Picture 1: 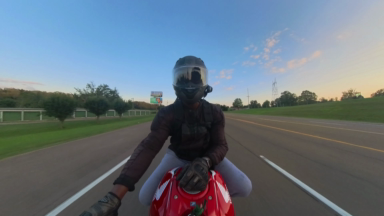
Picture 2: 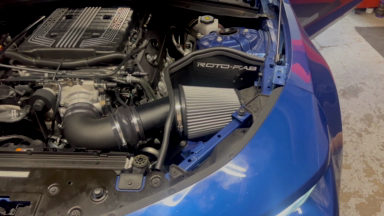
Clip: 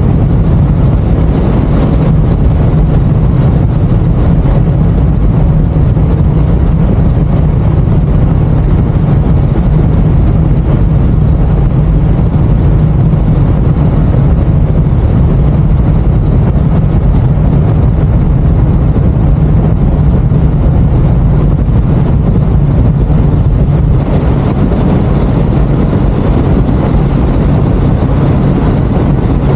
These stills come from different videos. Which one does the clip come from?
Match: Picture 1